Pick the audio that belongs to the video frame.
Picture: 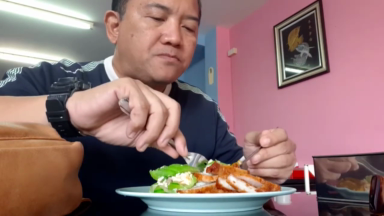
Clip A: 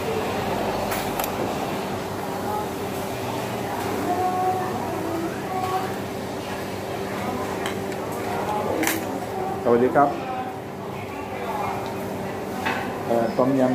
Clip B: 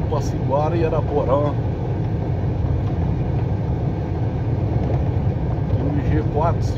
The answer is A